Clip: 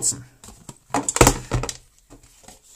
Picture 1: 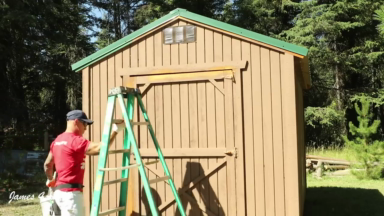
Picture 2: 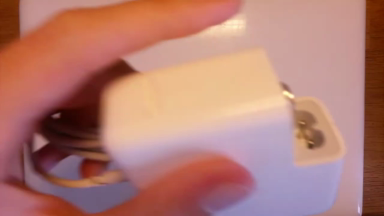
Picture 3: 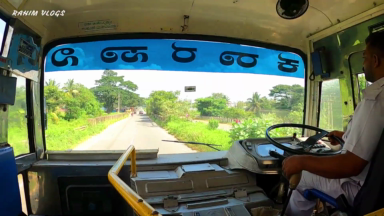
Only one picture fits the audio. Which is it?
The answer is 2